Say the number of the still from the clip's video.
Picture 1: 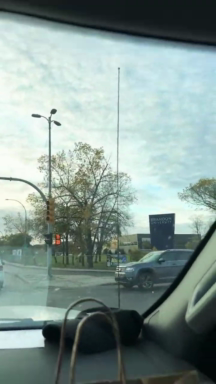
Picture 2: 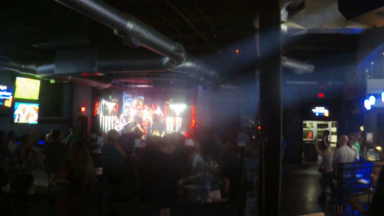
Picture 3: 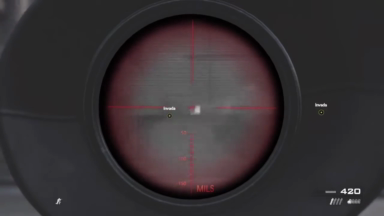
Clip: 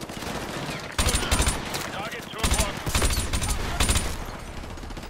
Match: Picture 3